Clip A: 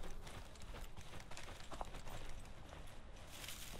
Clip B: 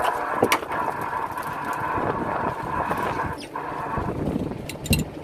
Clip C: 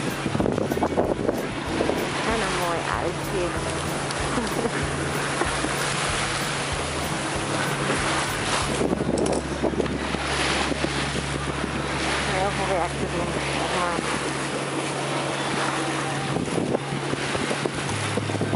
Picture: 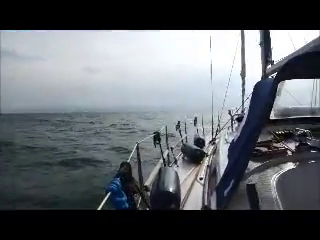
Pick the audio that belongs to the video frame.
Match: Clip C